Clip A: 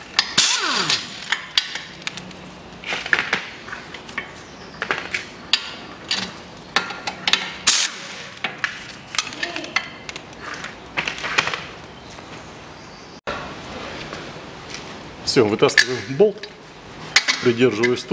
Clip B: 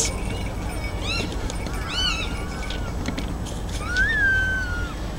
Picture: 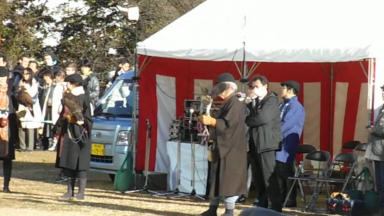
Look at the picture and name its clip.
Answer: B